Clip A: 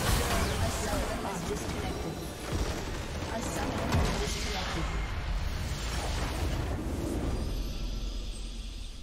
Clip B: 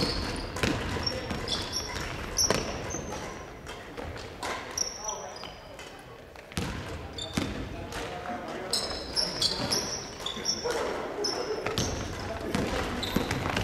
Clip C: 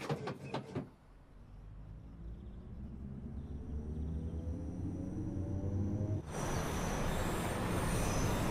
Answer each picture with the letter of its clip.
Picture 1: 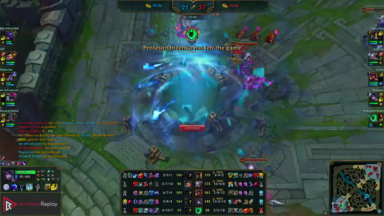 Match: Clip A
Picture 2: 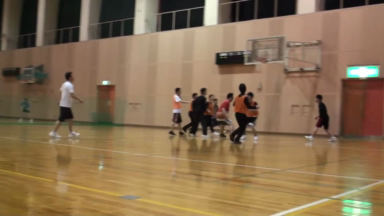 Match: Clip B